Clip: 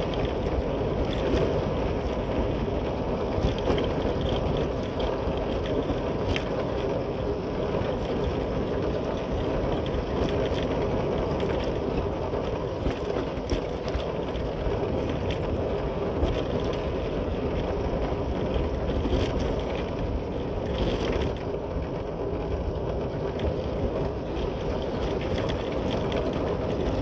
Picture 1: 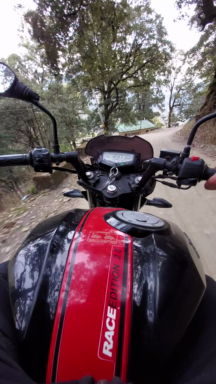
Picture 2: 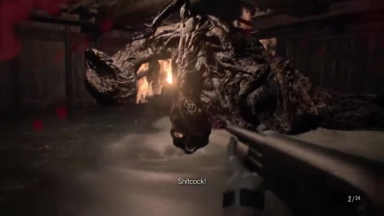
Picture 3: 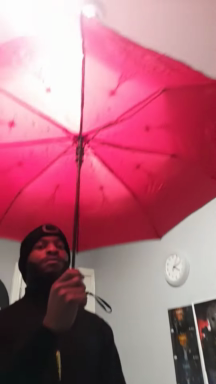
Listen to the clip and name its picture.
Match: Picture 1